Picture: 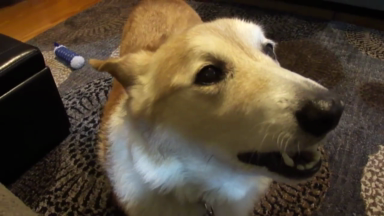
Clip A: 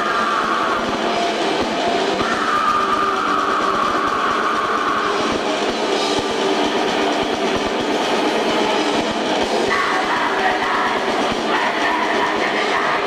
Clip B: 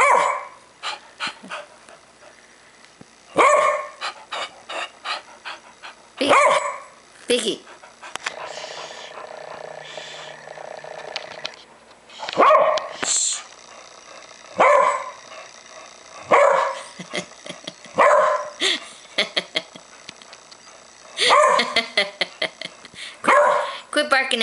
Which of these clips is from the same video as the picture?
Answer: B